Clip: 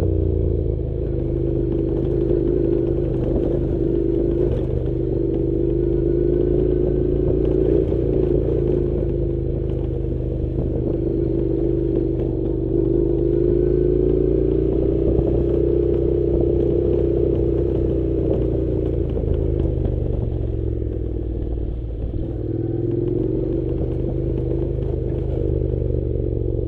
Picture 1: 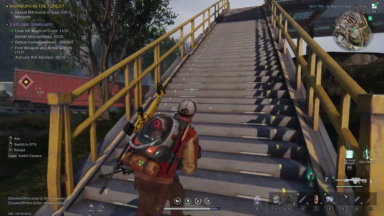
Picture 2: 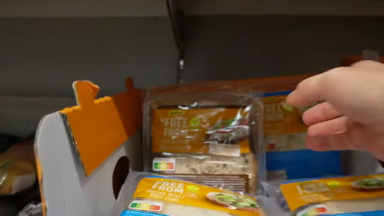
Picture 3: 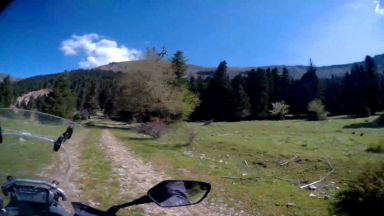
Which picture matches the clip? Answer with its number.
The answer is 3